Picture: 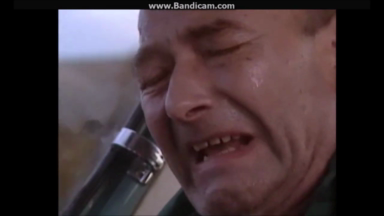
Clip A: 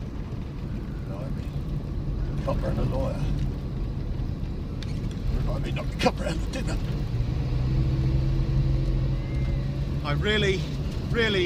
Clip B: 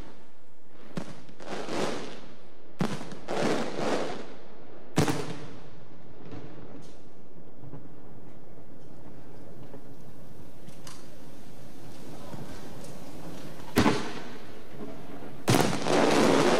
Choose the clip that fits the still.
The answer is A